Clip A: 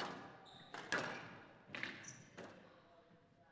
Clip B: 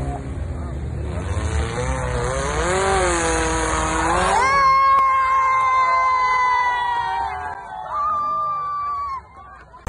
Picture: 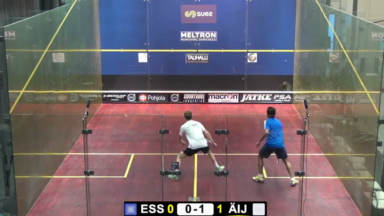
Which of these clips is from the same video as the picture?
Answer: A